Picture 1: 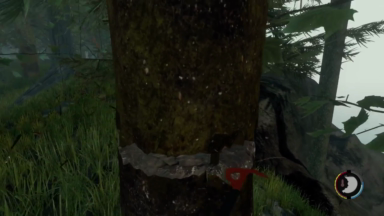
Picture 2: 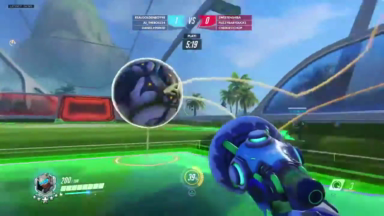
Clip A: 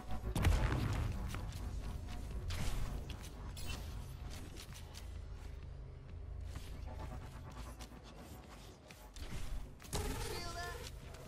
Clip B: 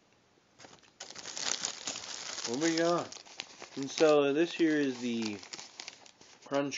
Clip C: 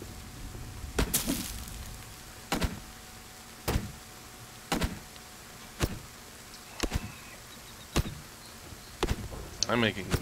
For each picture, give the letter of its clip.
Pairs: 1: C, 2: A